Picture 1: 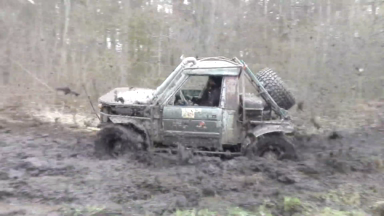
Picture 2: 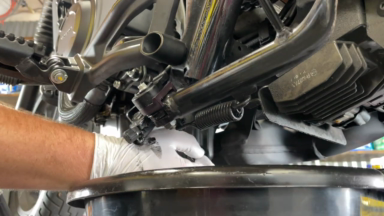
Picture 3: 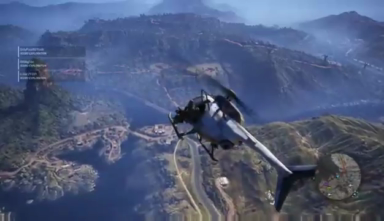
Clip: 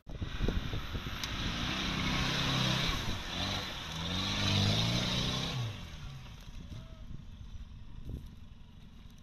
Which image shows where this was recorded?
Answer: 1